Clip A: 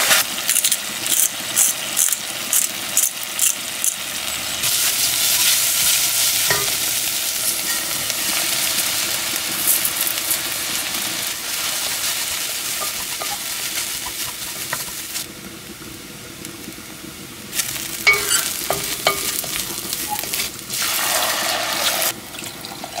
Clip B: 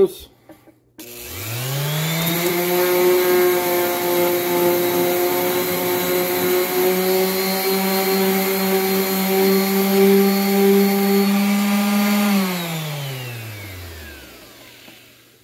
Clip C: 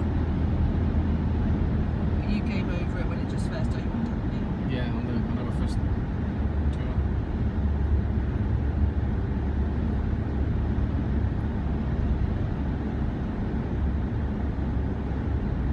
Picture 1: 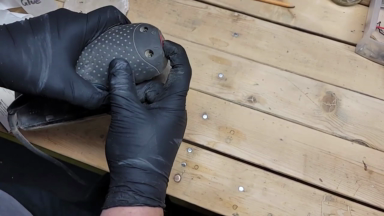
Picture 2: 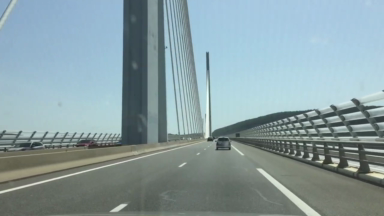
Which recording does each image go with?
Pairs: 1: B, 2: C